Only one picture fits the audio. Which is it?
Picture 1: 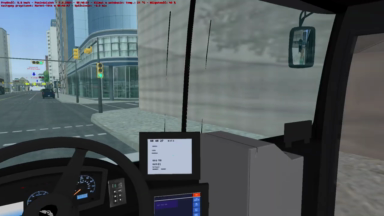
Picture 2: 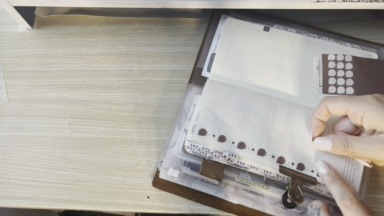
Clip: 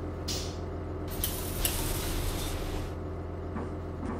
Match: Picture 1